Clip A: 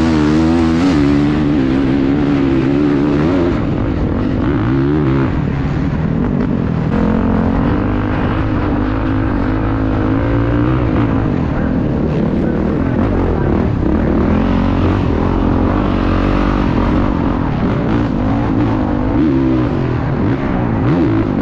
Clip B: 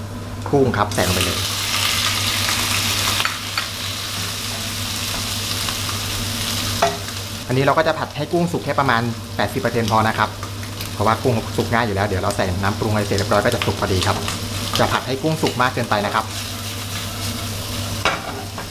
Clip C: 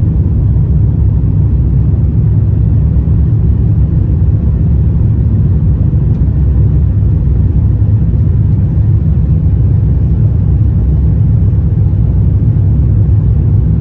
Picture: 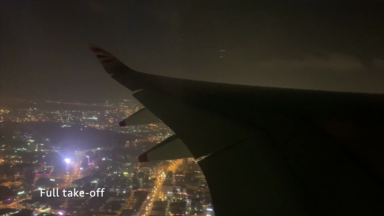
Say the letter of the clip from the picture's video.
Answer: C